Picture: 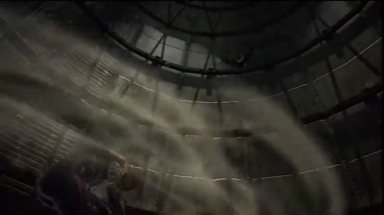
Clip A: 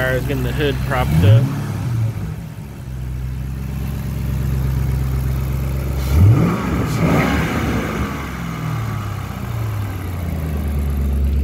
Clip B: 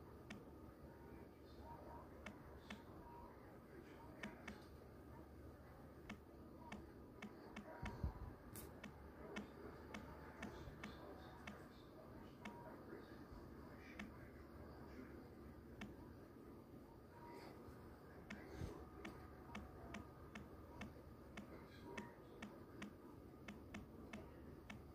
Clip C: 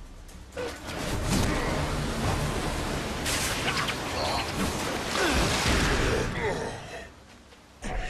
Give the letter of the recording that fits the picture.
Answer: C